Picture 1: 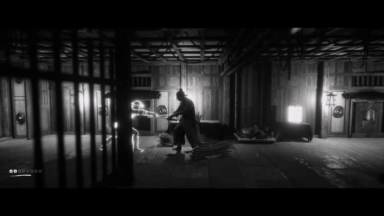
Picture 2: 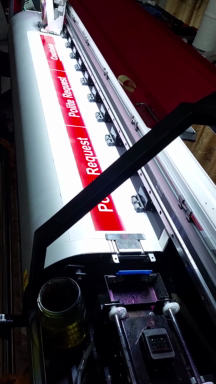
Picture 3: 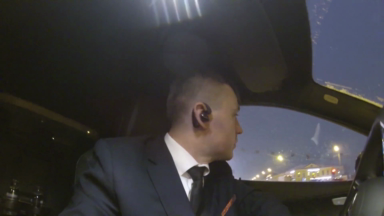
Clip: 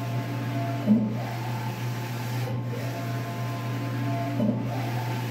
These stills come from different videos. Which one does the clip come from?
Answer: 2